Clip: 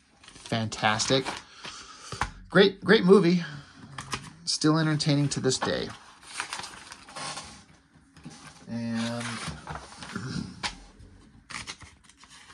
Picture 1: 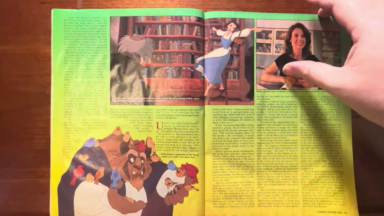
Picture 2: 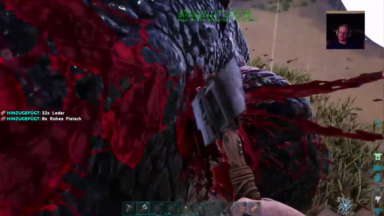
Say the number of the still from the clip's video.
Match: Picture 1